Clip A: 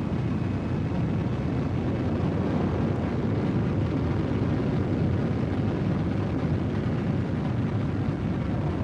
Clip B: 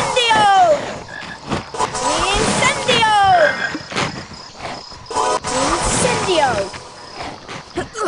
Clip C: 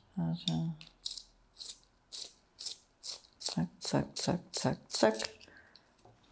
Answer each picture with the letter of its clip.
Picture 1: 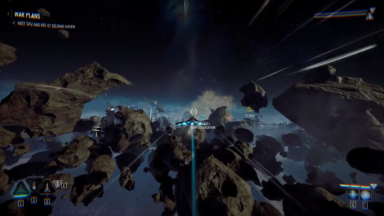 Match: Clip A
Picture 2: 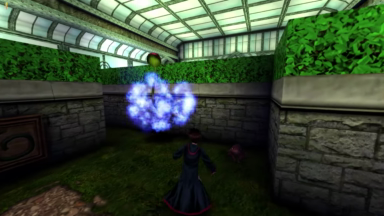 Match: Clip B